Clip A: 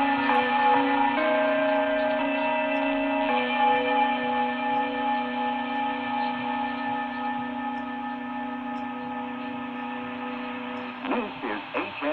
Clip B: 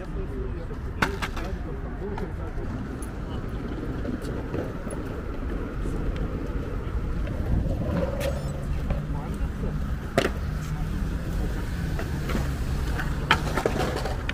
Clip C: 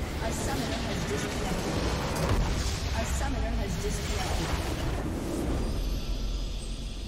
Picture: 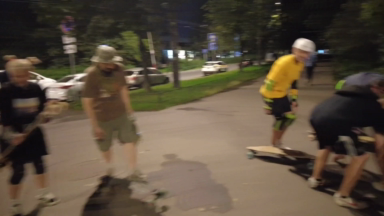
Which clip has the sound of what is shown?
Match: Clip B